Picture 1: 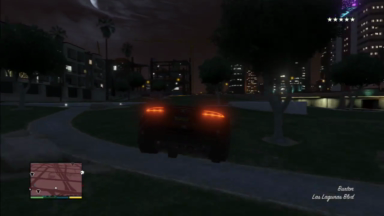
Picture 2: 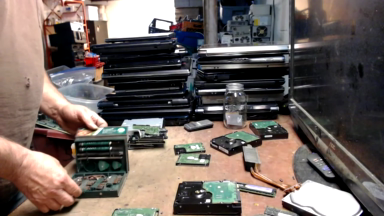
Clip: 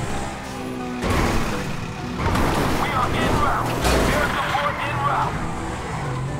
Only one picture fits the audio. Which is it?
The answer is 1